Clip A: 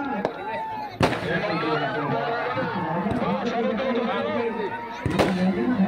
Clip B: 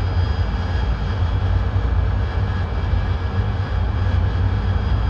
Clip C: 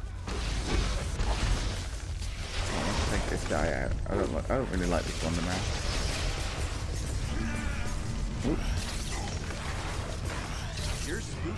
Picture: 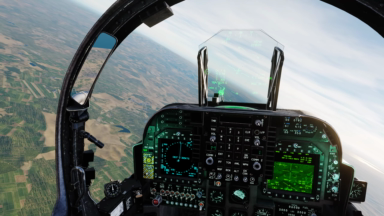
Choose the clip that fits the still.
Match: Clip B